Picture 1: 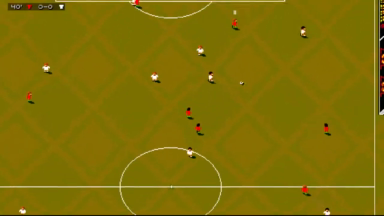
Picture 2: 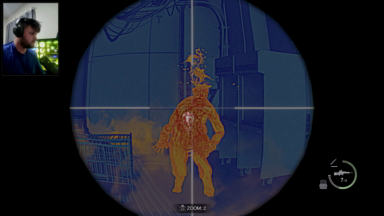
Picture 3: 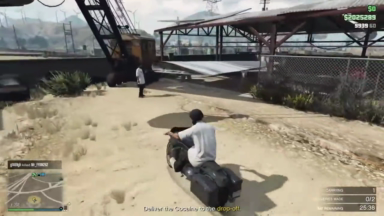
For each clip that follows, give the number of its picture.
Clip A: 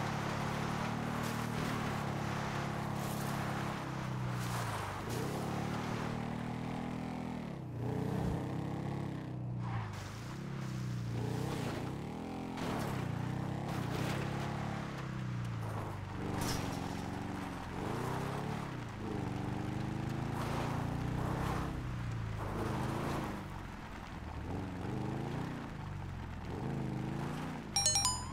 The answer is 3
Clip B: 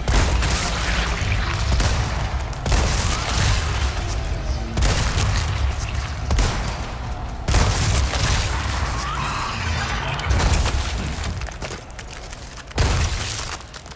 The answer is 2